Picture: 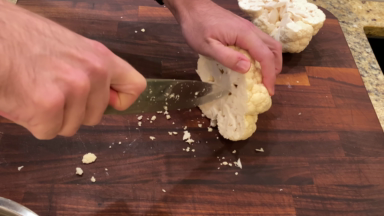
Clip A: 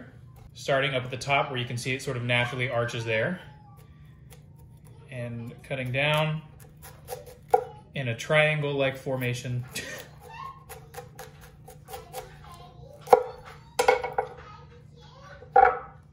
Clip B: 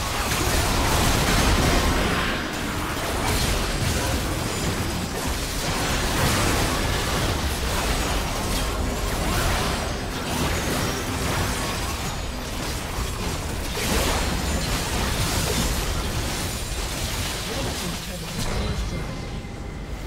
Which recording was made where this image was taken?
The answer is A